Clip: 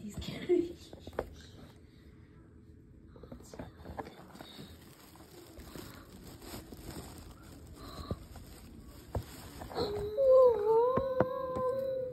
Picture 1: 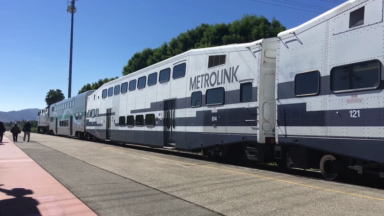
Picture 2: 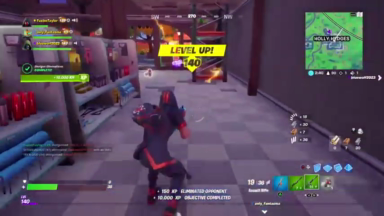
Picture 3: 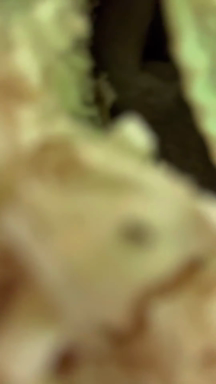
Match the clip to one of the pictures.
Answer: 3